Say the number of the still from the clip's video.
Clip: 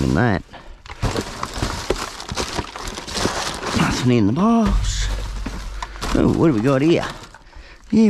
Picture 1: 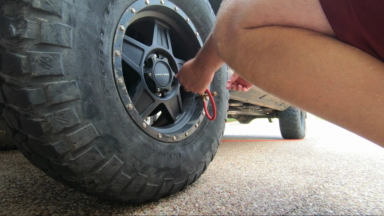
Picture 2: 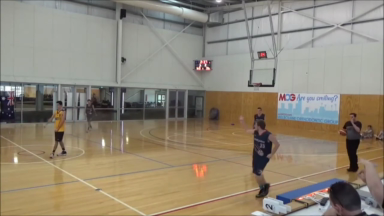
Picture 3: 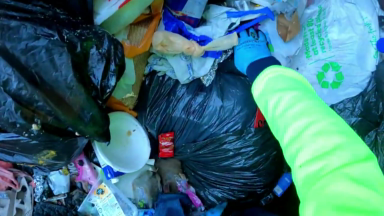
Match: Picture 3